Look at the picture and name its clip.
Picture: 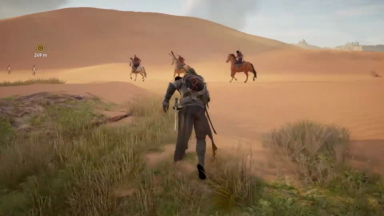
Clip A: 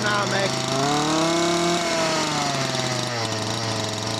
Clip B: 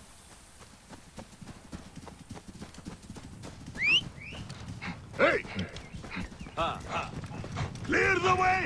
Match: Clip B